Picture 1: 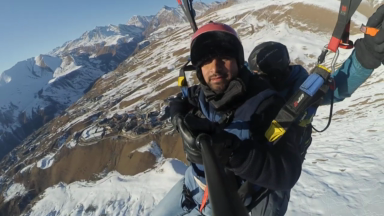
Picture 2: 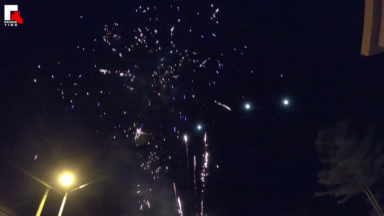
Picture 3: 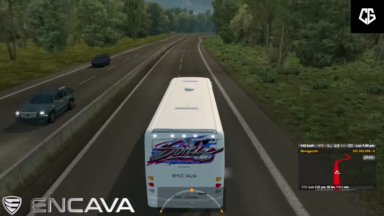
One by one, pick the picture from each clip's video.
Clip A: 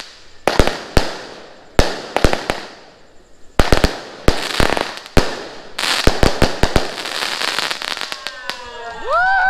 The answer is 2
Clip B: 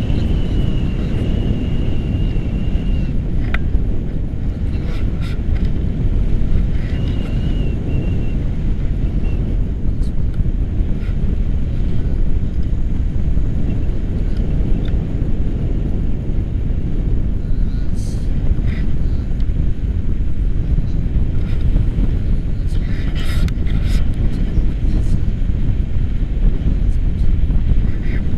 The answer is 1